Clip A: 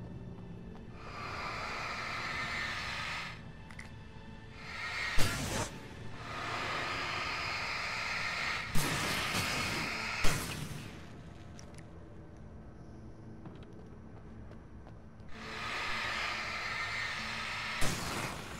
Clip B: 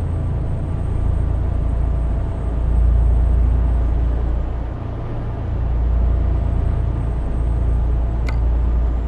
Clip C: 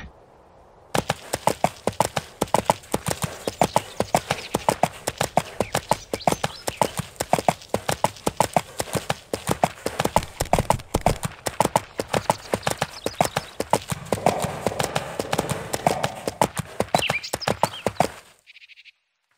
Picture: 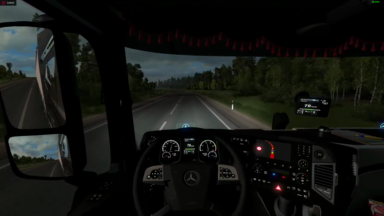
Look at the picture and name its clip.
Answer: B